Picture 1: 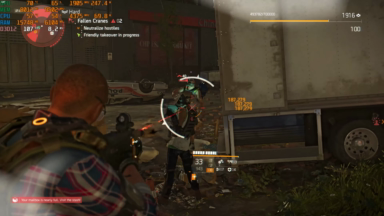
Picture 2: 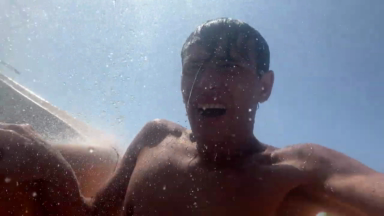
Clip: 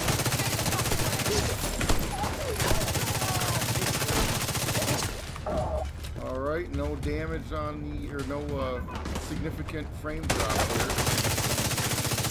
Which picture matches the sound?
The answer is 1